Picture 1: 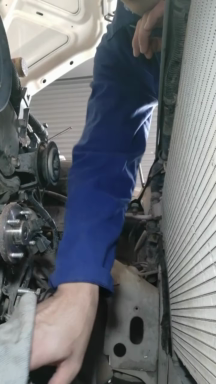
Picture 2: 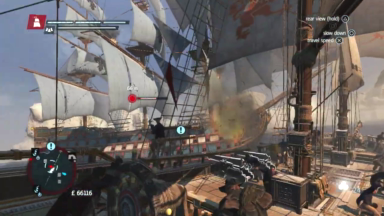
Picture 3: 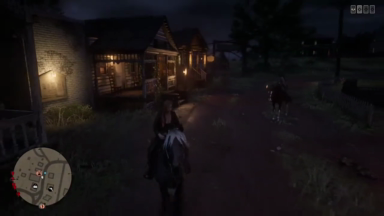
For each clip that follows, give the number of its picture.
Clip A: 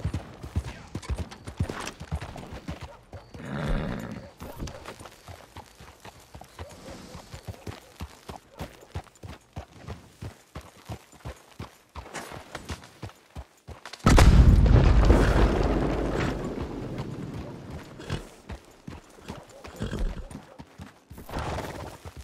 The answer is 3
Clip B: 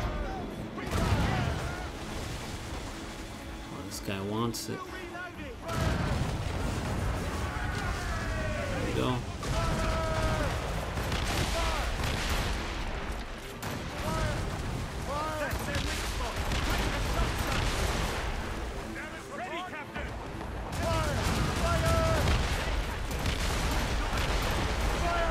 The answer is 2